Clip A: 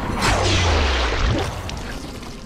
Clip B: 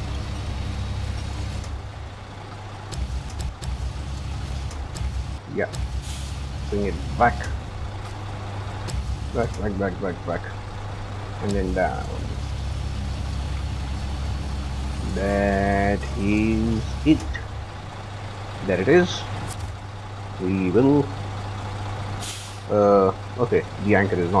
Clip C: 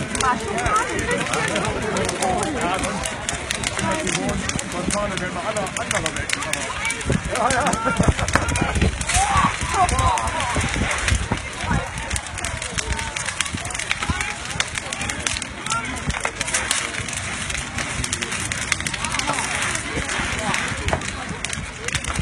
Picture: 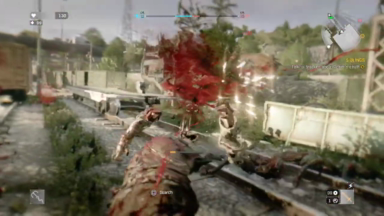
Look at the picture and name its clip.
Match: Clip A